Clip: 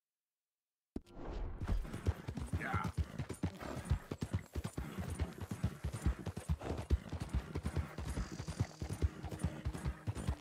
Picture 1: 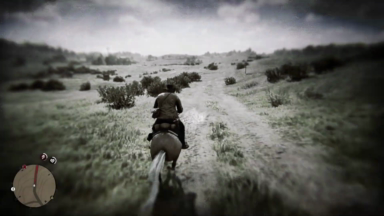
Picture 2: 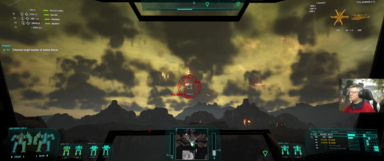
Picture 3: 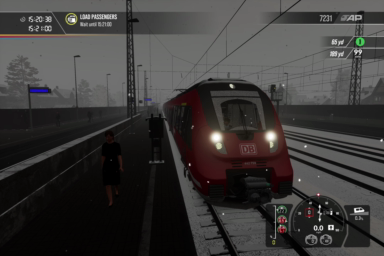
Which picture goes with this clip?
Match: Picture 1